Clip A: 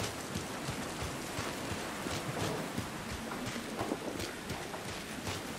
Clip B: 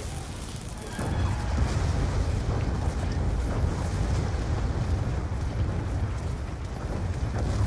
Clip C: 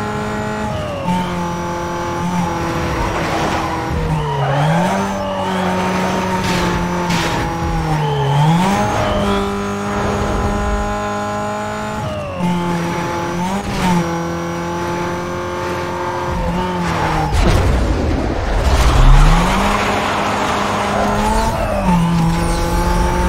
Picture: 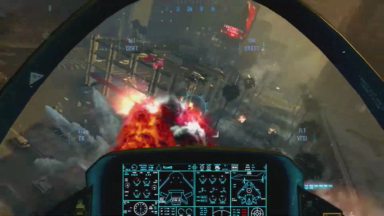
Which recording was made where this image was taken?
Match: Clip B